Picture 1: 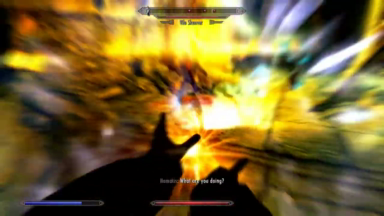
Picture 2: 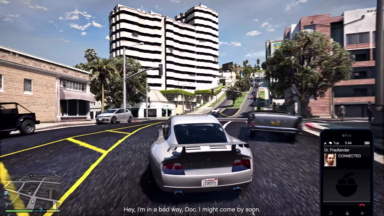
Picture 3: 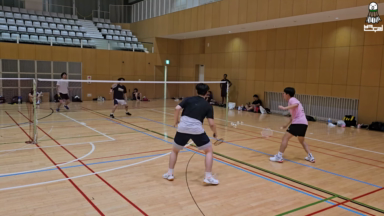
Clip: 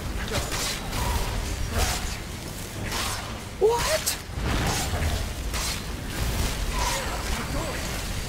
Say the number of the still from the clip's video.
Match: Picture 1